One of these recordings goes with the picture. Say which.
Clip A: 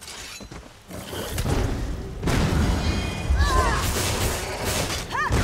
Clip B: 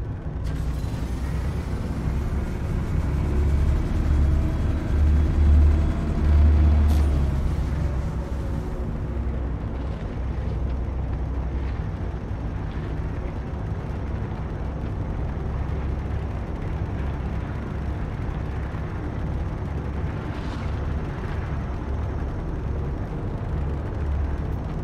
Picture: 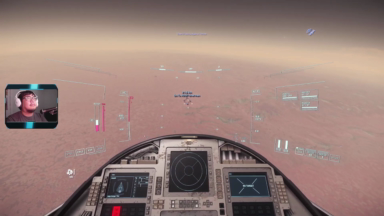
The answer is B